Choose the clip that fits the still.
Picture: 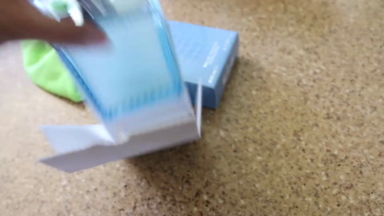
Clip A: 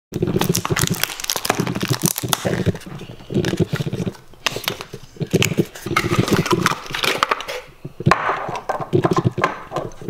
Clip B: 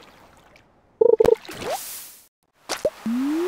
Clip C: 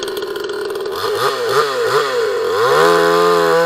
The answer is A